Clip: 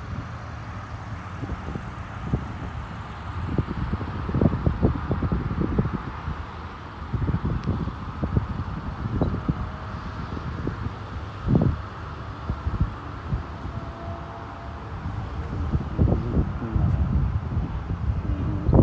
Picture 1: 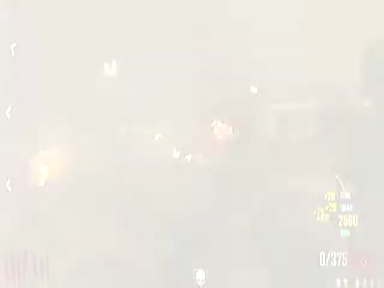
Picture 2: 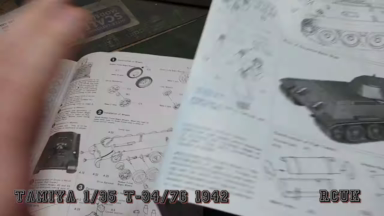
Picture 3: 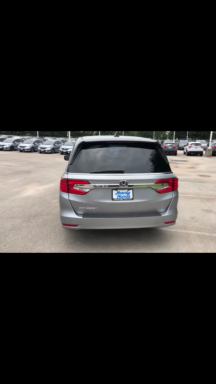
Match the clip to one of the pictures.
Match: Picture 3